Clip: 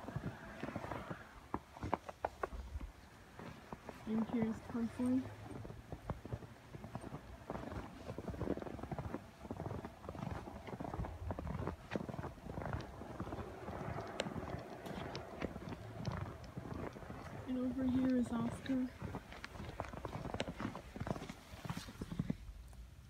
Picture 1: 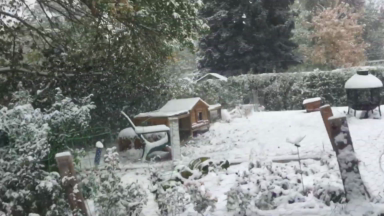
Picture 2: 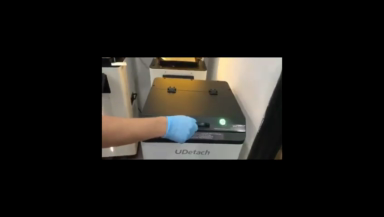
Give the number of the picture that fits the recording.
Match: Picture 1